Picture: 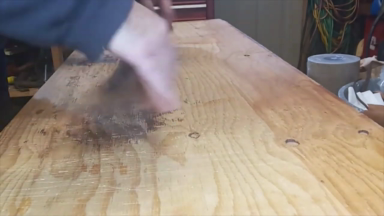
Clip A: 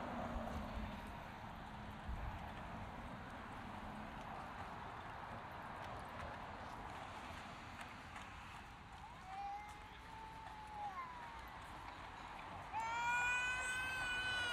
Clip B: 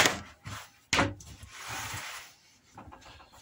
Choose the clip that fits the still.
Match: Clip B